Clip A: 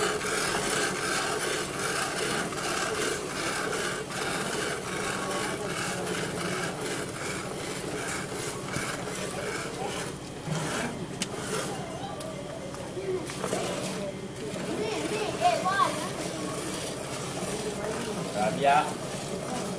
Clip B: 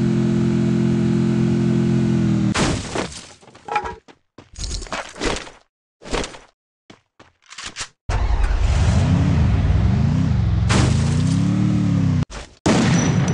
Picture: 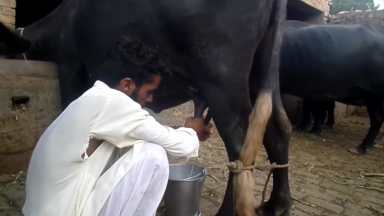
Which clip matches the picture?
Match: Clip A